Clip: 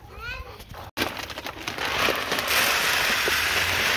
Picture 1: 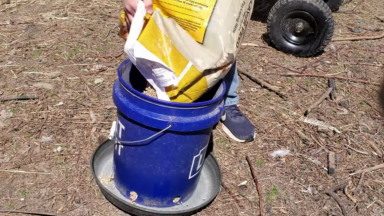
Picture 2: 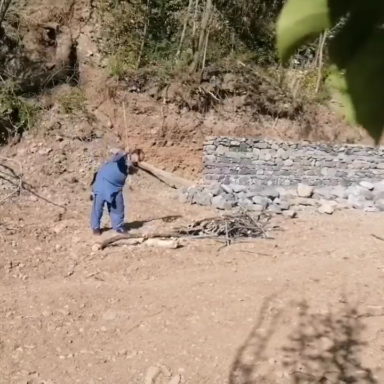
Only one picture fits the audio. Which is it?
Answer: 1